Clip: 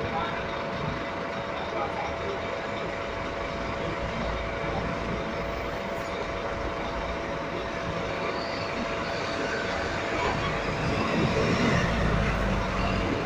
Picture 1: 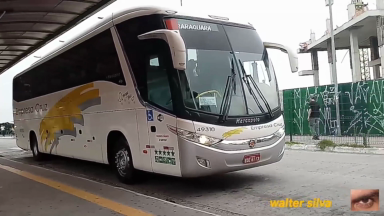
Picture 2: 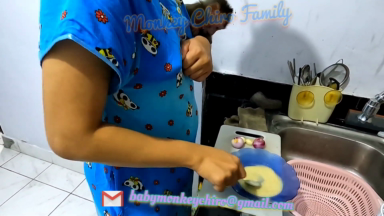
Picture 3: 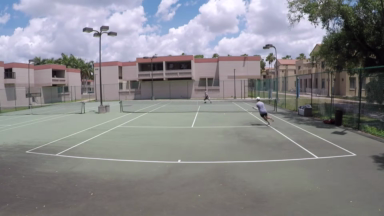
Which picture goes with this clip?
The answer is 1